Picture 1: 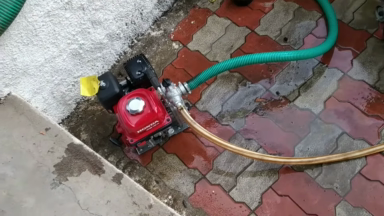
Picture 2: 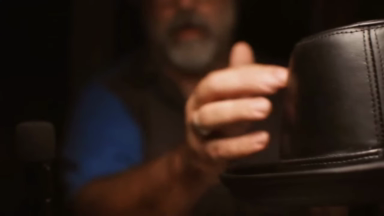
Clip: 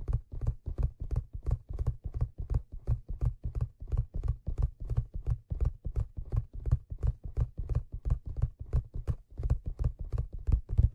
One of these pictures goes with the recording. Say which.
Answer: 2